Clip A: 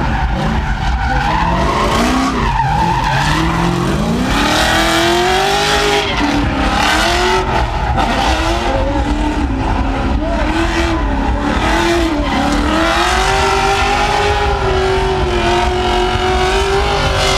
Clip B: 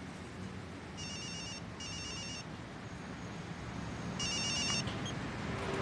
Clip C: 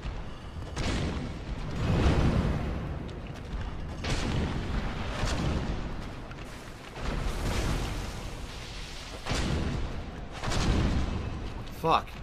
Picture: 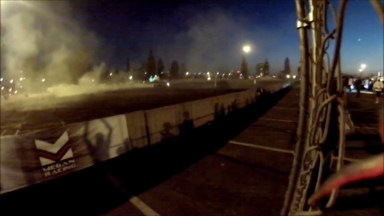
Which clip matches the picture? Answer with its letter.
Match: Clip A